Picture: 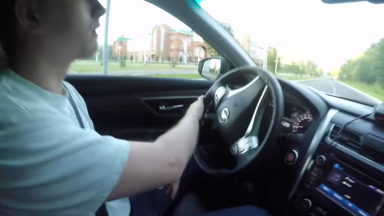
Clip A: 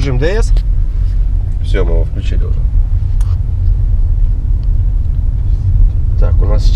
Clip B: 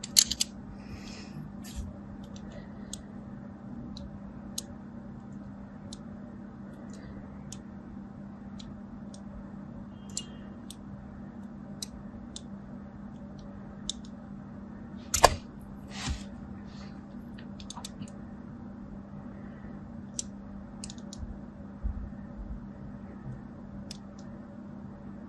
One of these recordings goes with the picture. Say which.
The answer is A